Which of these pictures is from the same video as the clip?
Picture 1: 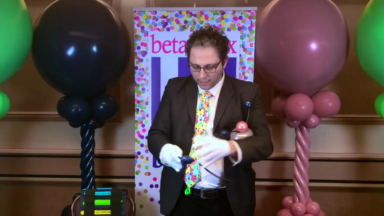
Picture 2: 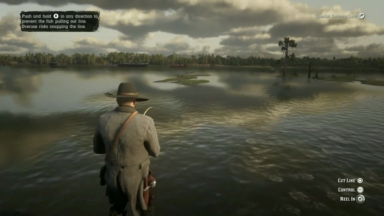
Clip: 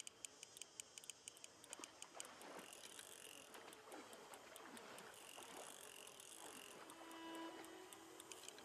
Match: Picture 2